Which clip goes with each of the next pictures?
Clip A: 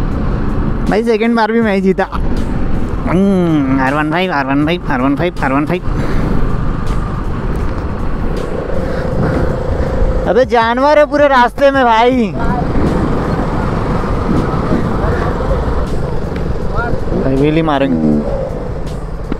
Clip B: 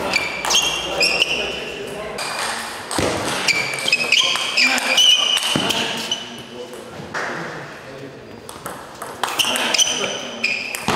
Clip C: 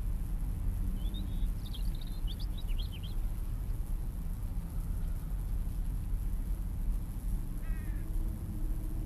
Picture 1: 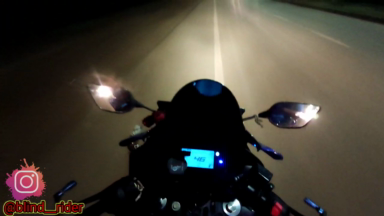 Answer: A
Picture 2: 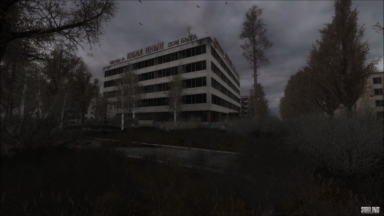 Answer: C